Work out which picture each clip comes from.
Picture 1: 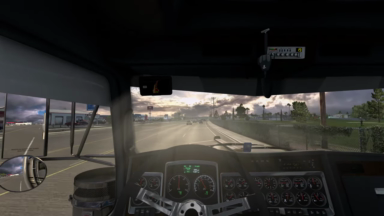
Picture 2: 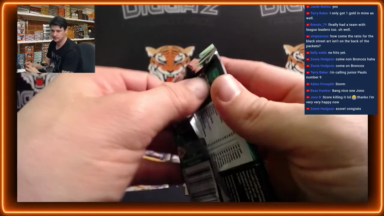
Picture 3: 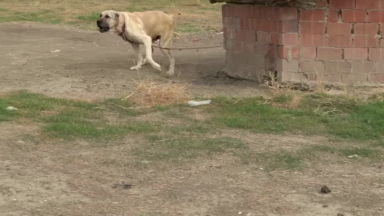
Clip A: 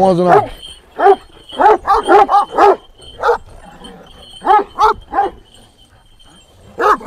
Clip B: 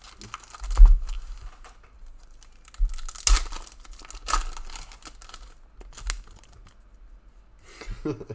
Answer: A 3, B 2